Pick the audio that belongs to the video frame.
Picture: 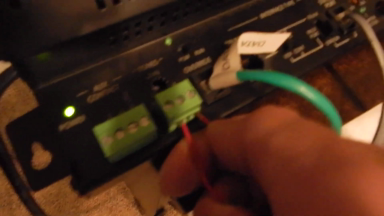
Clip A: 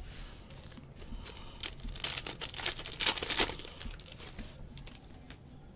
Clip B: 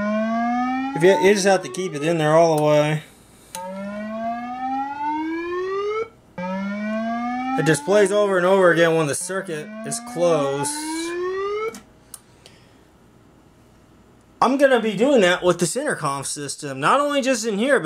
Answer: B